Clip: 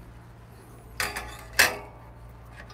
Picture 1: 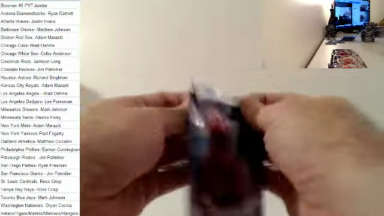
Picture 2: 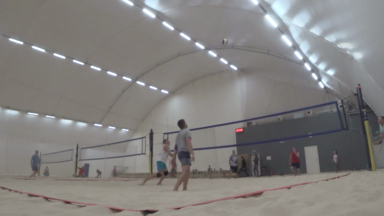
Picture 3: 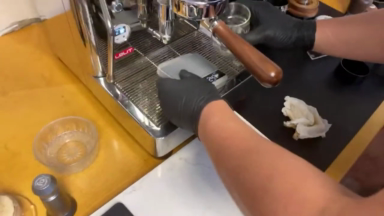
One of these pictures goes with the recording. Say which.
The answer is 3